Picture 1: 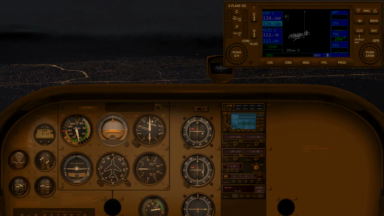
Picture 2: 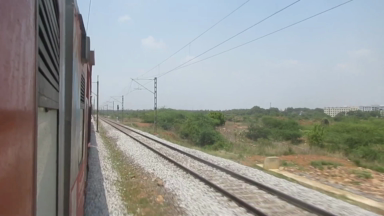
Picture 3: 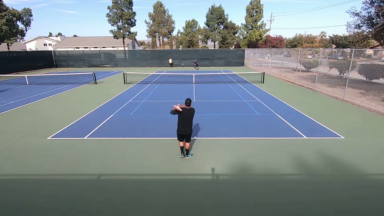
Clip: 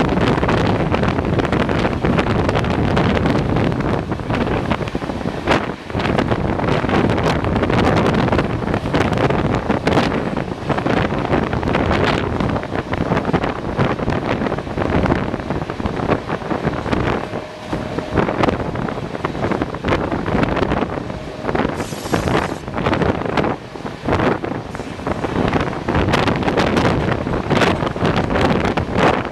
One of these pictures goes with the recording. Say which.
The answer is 2